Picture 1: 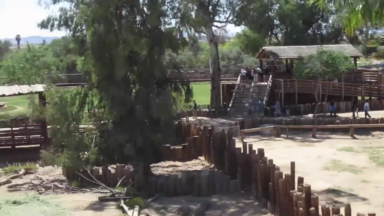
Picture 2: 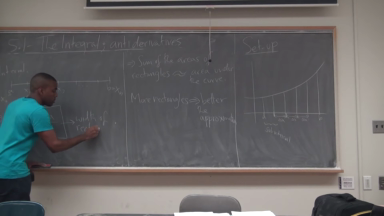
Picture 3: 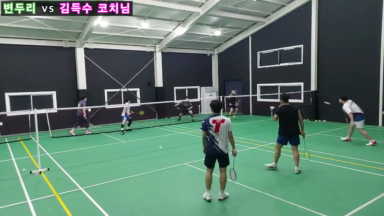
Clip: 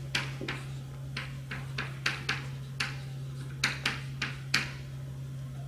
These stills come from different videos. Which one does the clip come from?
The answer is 2